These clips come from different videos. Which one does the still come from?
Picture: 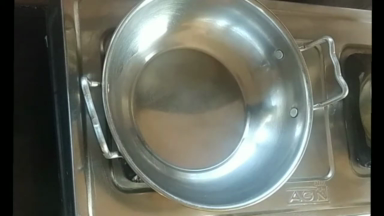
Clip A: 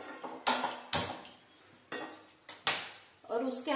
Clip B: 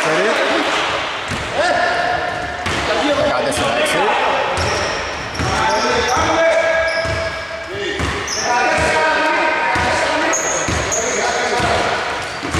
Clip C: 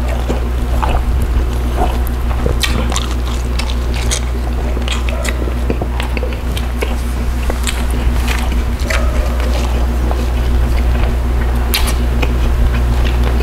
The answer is A